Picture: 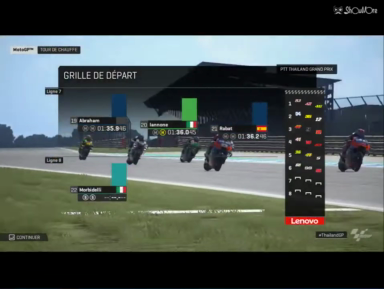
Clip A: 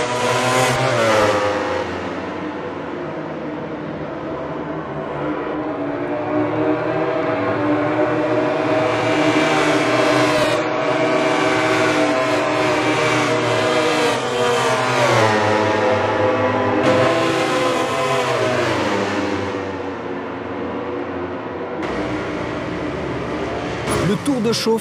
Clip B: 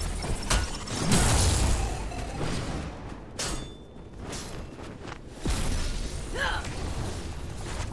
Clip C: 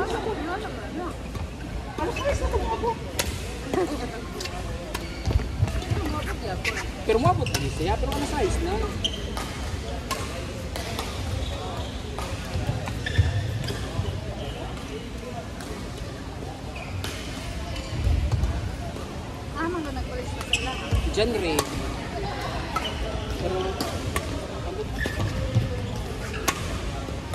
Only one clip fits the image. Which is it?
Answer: A